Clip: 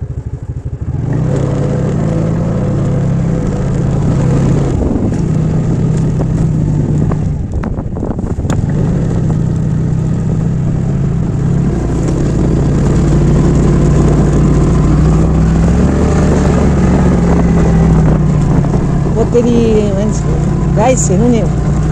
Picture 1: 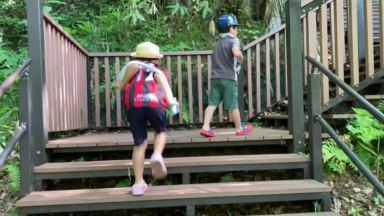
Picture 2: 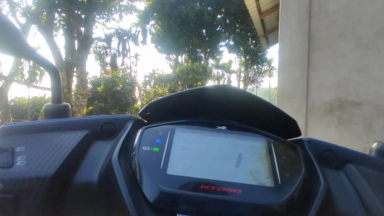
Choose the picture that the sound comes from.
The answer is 2